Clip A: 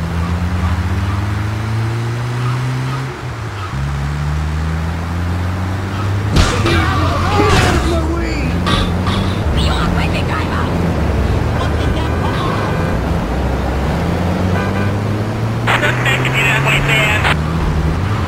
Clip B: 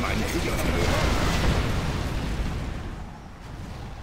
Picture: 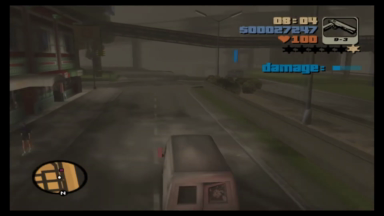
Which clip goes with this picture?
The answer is A